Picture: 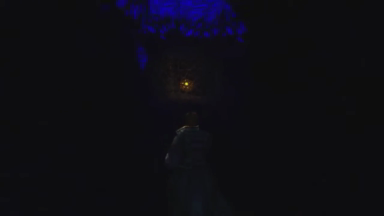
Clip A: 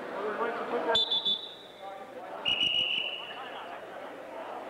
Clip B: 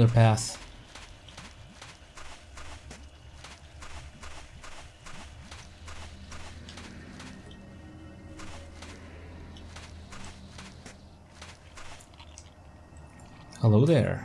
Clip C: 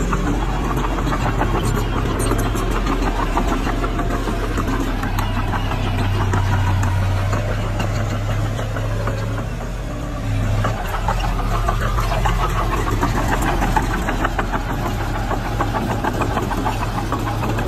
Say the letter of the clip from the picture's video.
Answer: B